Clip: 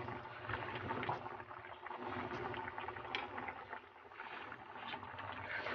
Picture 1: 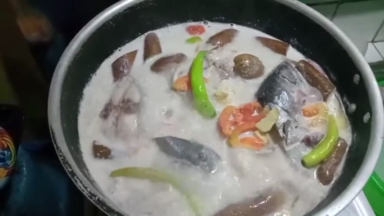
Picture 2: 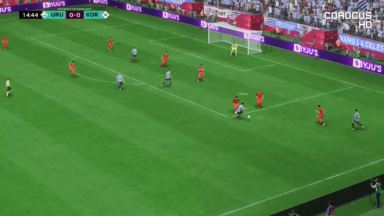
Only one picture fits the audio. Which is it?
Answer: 1